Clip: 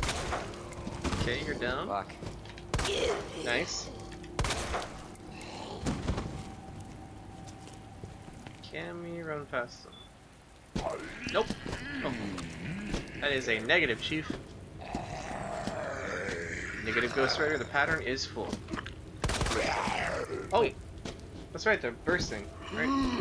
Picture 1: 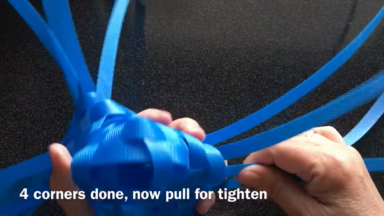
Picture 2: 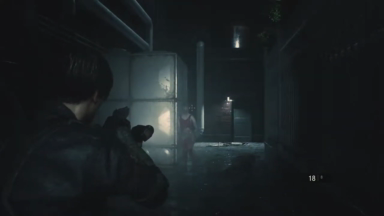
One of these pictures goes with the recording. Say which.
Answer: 2